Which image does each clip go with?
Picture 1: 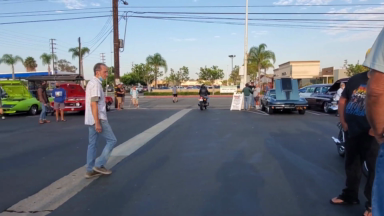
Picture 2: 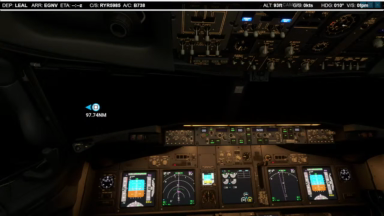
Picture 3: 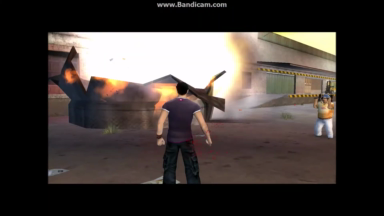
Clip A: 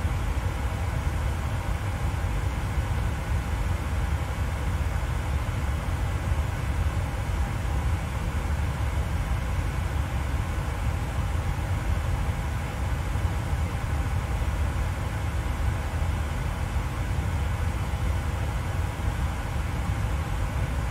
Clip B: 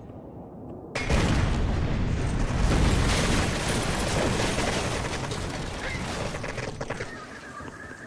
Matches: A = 2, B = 3